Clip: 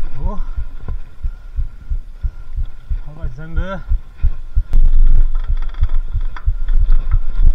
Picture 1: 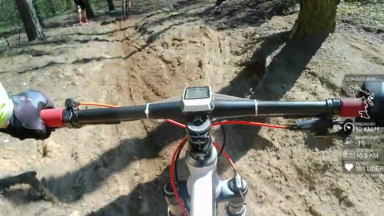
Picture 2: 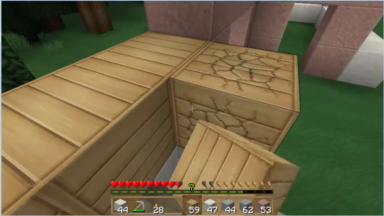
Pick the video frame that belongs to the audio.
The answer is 1